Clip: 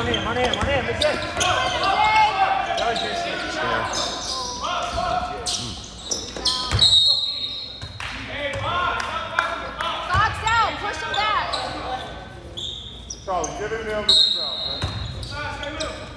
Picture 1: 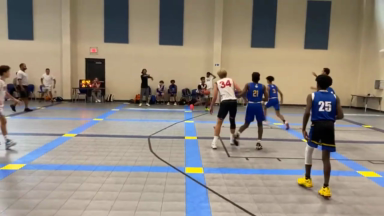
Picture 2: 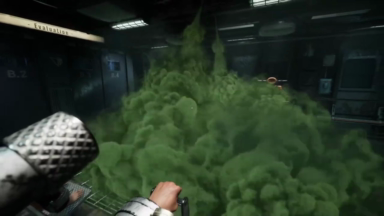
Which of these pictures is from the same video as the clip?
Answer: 1